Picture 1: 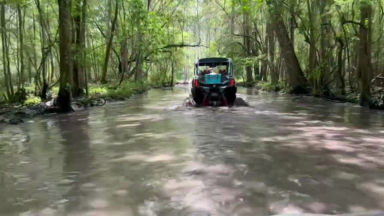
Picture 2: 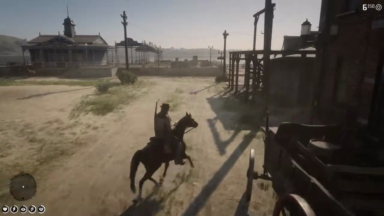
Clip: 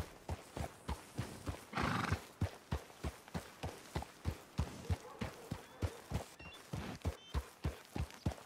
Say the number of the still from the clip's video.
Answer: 2